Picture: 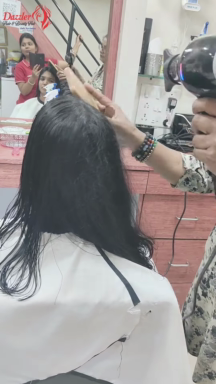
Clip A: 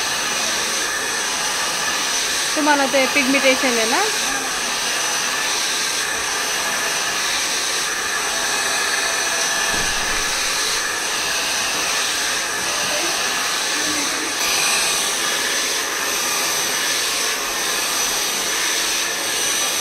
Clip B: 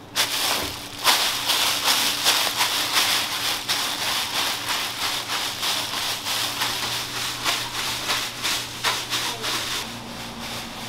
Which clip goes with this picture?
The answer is A